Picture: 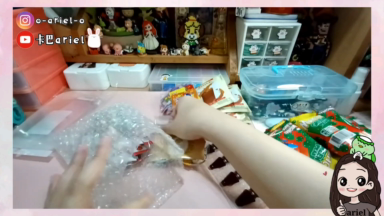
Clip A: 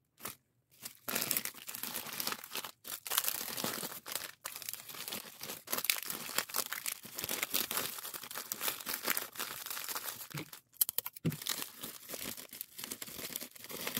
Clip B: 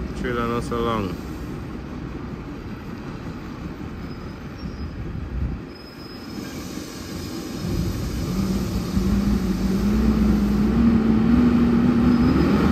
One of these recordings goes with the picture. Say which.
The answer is A